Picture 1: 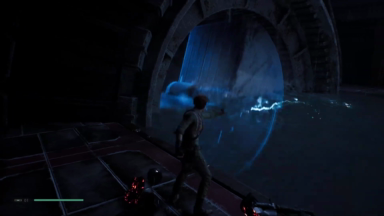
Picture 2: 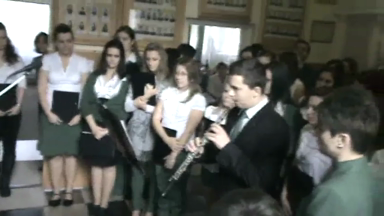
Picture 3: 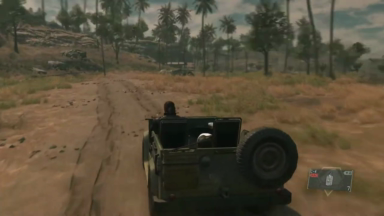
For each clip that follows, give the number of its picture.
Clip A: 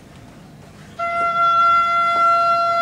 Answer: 2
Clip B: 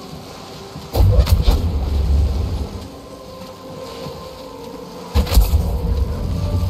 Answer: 1